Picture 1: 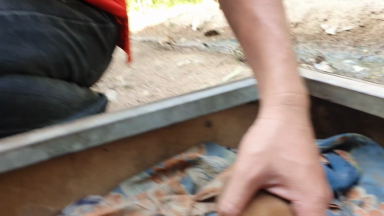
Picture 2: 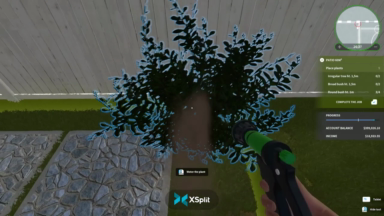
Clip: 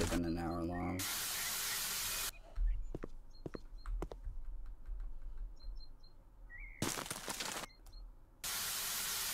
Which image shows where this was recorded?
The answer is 2